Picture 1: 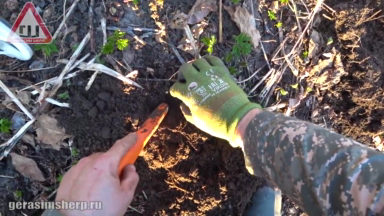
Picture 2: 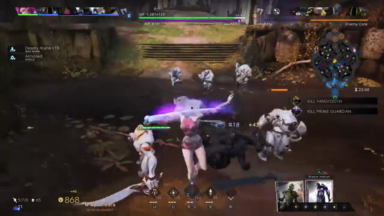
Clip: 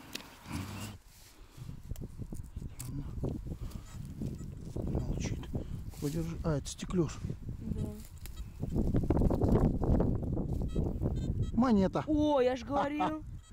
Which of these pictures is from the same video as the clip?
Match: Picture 1